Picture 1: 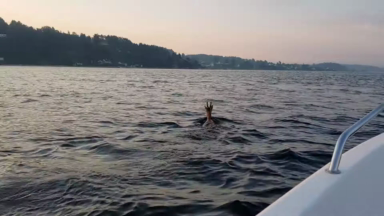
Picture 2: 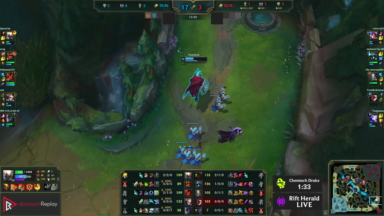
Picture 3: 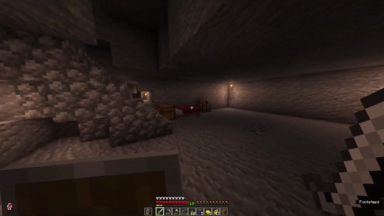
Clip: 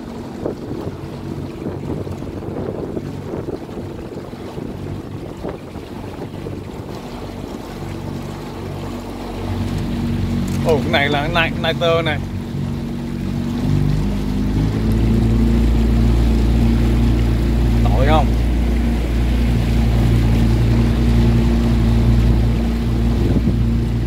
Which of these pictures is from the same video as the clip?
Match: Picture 1